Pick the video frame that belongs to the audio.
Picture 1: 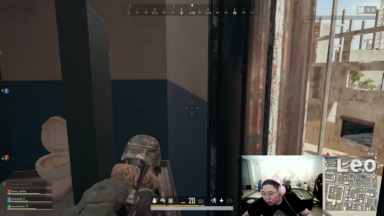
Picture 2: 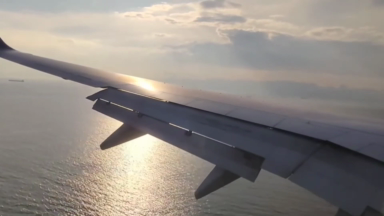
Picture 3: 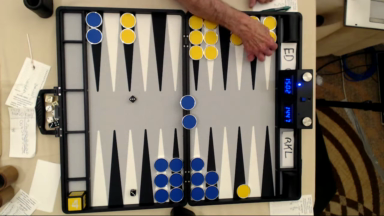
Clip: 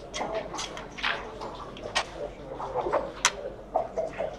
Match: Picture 3